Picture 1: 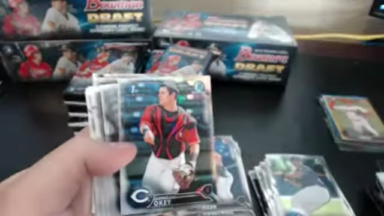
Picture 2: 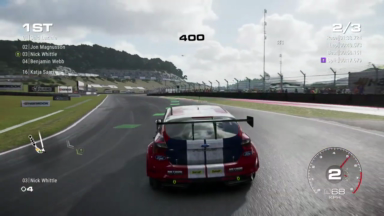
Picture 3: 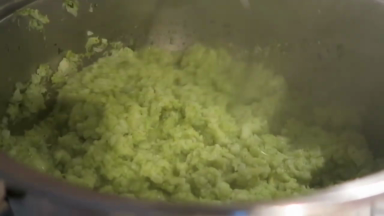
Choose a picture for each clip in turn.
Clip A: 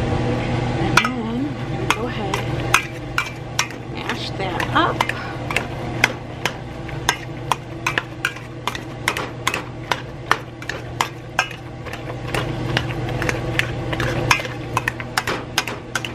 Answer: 3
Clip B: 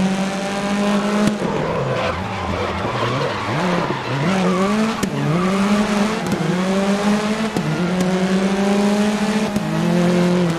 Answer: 2